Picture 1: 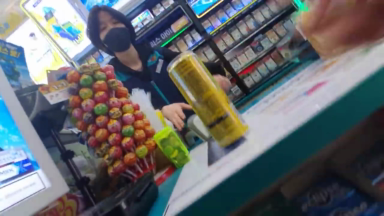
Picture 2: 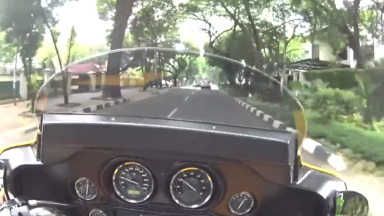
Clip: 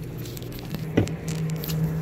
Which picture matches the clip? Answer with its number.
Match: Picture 1